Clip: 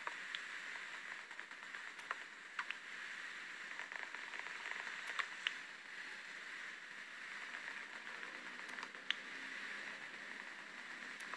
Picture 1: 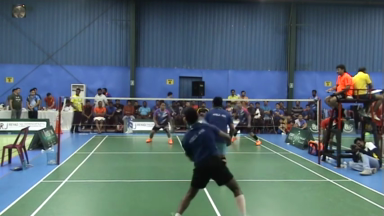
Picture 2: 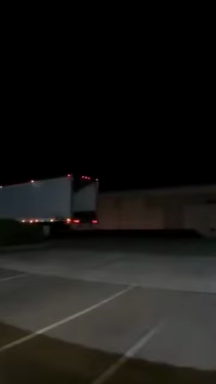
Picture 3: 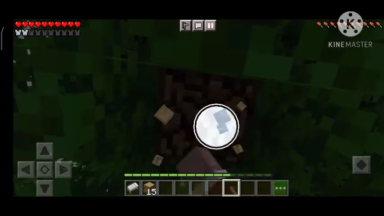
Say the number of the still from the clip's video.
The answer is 3